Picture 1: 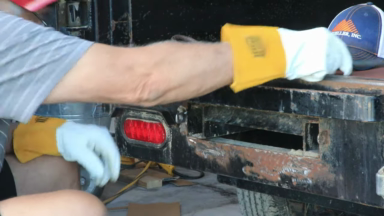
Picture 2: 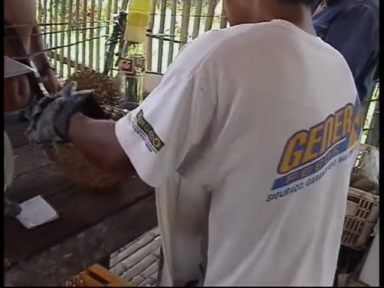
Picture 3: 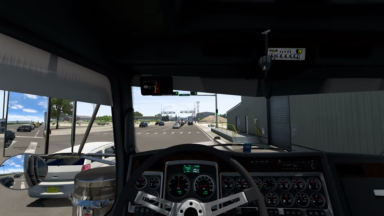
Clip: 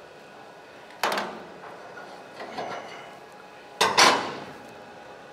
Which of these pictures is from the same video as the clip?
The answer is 1